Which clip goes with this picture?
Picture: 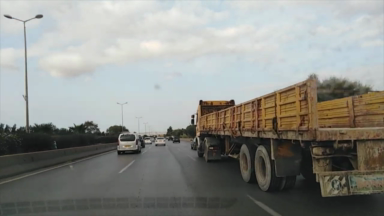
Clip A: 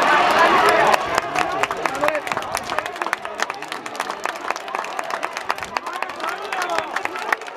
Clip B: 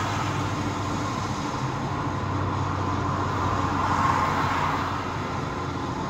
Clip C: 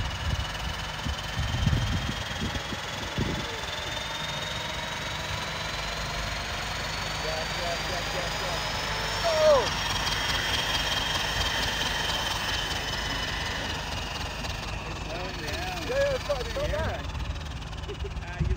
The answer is B